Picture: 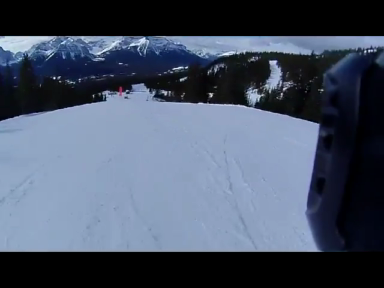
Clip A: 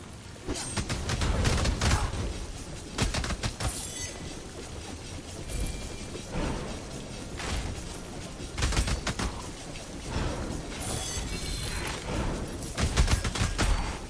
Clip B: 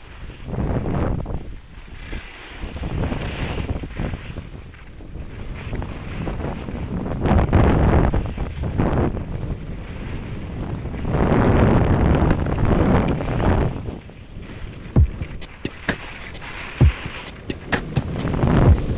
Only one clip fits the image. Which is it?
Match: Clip B